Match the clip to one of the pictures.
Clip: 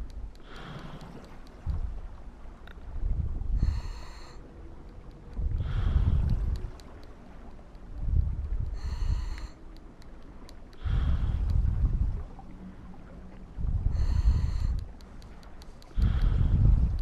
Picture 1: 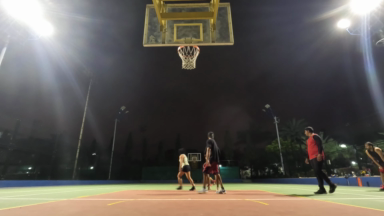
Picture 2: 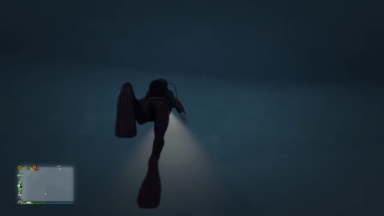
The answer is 2